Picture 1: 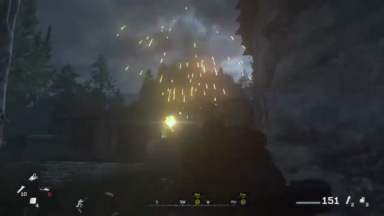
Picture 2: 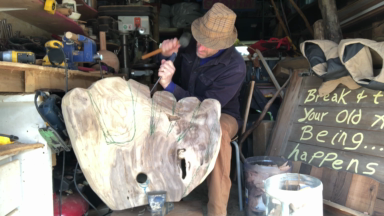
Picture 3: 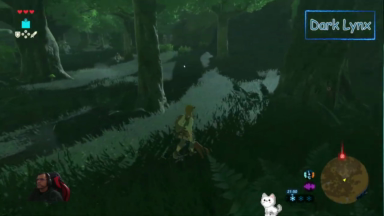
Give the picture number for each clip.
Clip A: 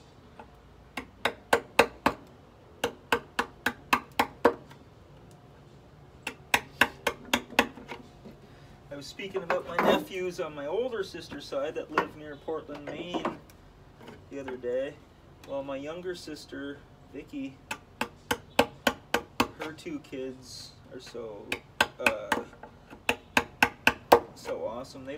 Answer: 2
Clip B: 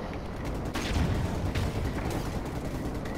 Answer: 1